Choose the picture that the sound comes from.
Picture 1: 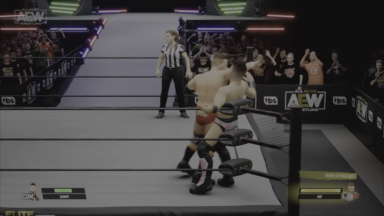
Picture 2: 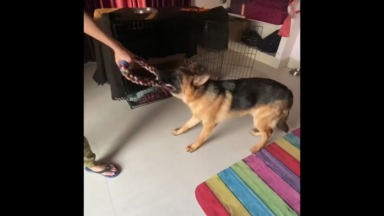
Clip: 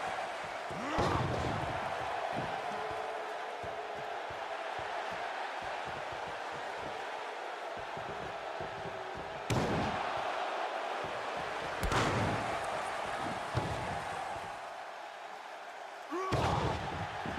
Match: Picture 1